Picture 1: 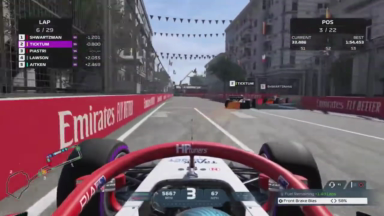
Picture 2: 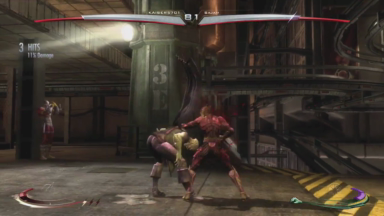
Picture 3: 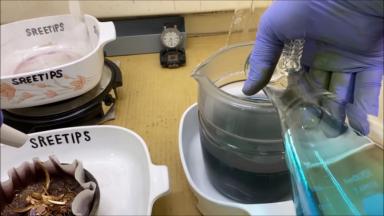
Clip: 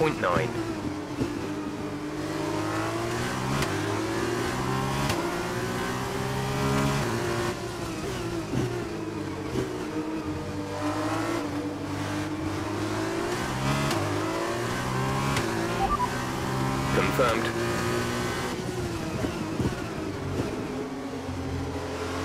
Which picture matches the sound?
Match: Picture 1